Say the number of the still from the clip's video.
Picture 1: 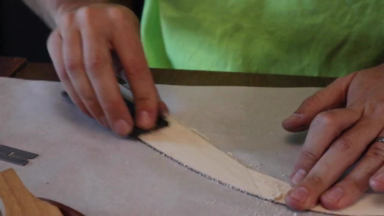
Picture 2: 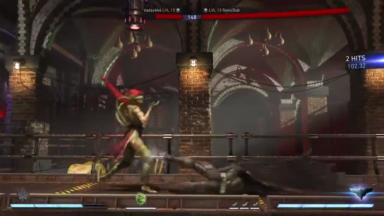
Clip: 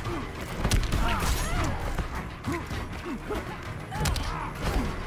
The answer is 2